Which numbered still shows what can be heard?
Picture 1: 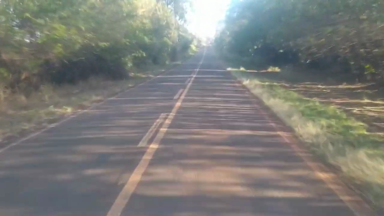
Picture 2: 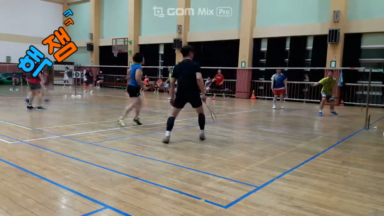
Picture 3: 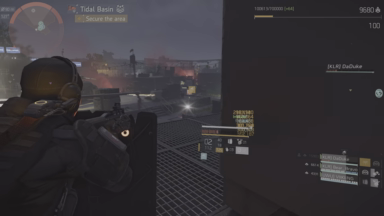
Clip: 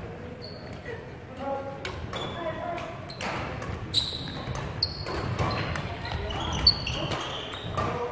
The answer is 2